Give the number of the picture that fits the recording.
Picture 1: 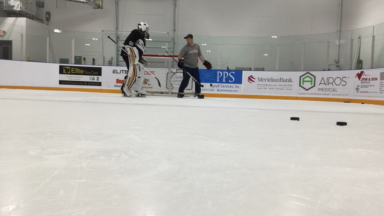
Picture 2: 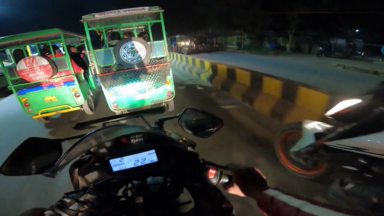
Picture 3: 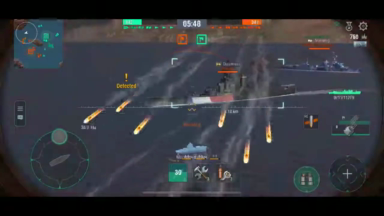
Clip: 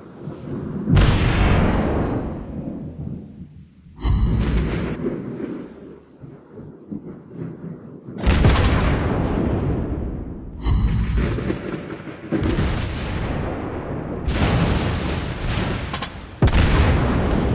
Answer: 3